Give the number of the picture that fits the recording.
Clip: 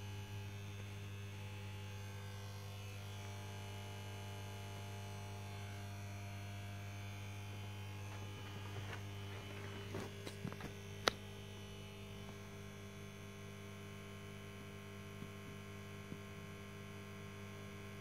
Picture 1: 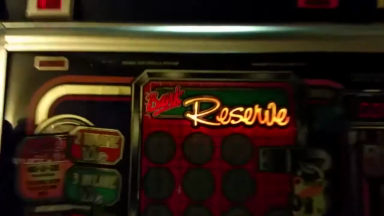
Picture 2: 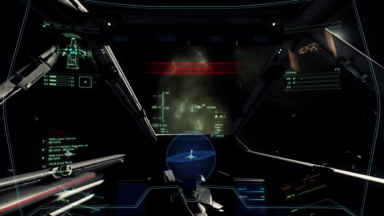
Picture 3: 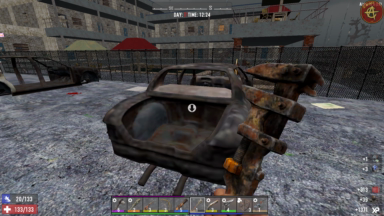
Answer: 1